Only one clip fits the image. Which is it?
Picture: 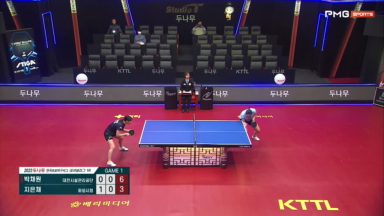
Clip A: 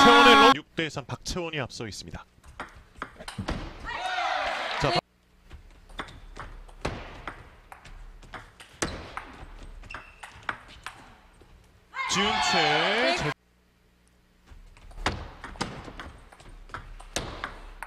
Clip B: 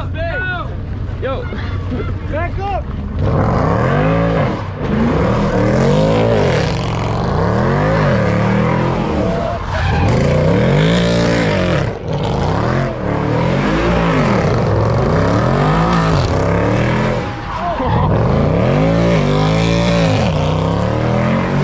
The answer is A